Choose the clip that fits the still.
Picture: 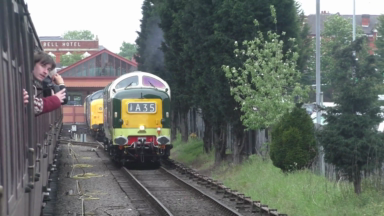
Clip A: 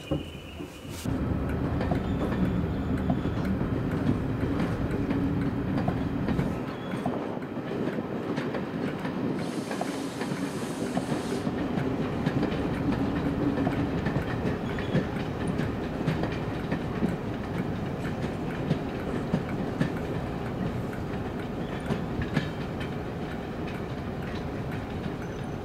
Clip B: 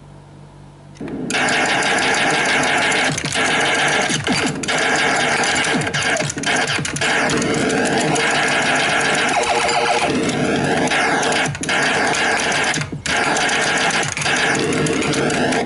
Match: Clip A